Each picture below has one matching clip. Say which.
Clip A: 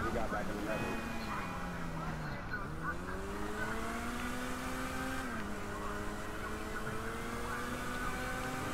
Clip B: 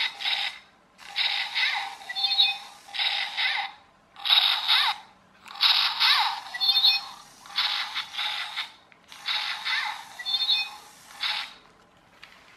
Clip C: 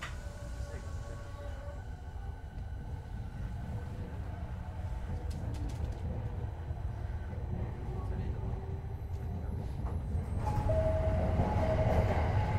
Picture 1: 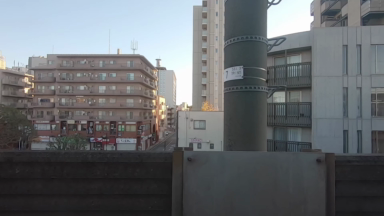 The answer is C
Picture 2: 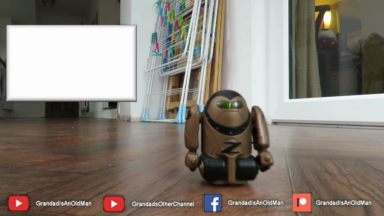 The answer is B